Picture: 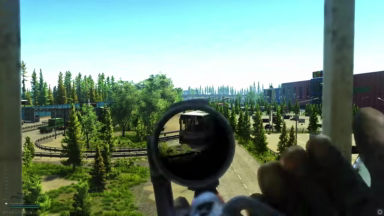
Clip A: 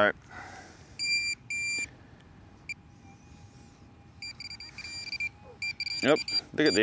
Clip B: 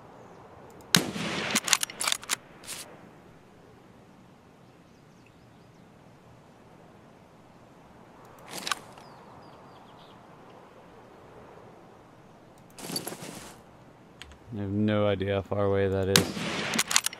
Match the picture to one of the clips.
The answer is B